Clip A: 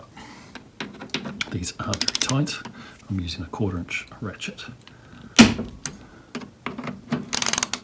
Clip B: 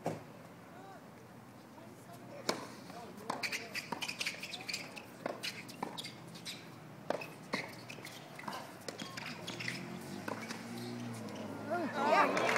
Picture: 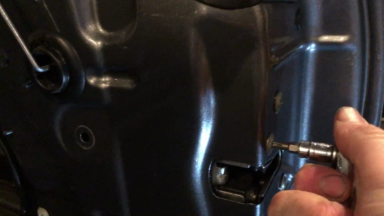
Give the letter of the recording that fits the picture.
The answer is A